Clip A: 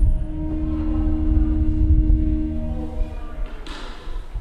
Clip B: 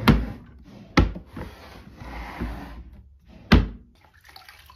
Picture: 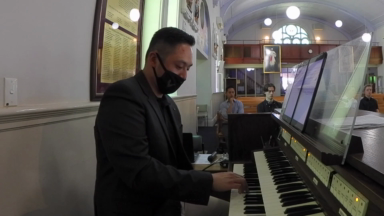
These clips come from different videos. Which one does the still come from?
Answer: A